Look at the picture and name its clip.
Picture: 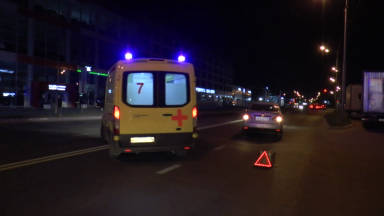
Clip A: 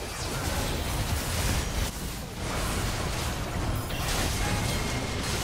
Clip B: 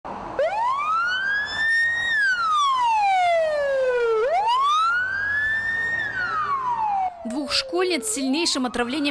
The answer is B